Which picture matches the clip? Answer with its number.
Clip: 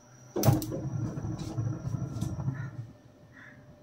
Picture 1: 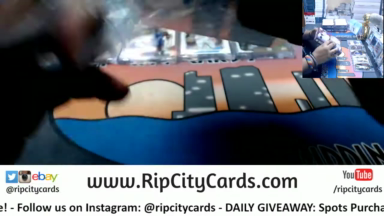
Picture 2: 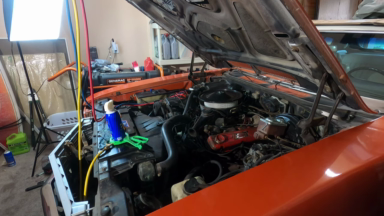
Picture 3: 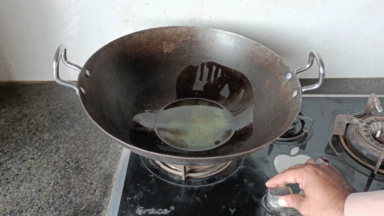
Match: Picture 3